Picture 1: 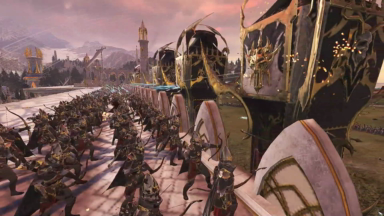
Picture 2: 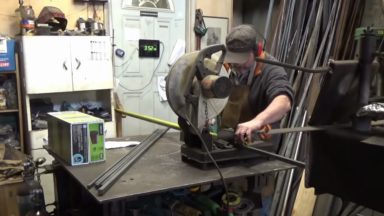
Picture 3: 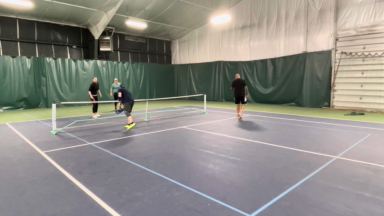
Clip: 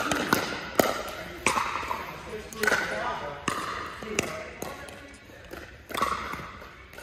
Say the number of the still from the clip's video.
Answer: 3